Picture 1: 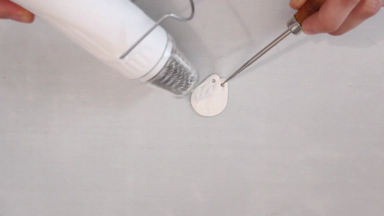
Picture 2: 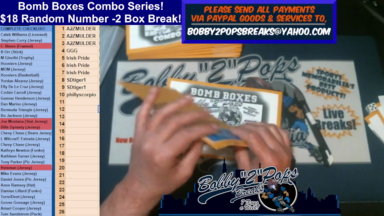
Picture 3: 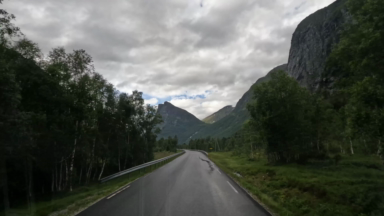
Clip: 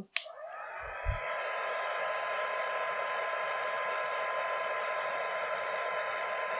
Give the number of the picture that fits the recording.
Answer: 1